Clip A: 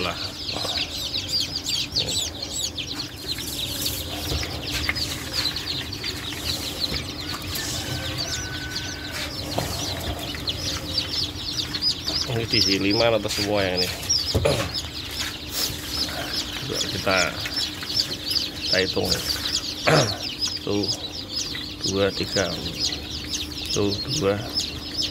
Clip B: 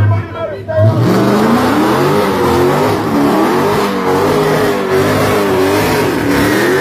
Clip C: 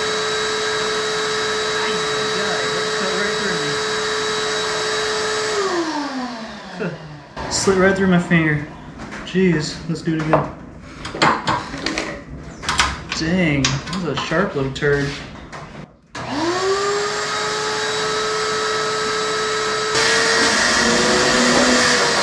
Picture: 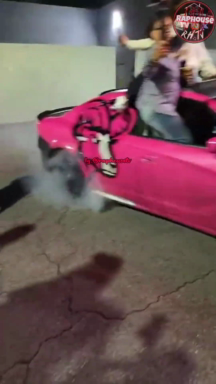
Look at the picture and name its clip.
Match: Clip B